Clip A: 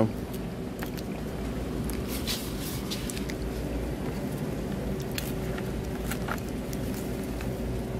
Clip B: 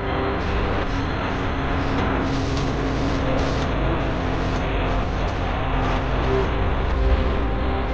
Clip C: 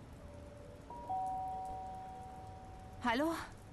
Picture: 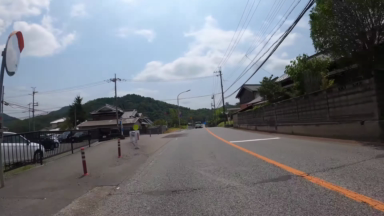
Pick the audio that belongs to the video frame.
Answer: B